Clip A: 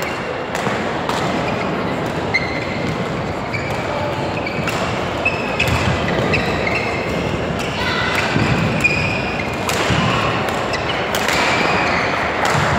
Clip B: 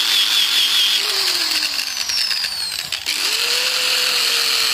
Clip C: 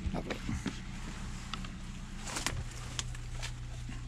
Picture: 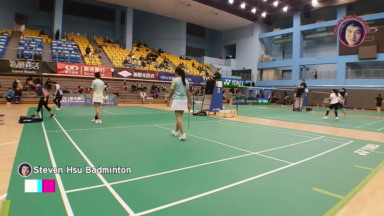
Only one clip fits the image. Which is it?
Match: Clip A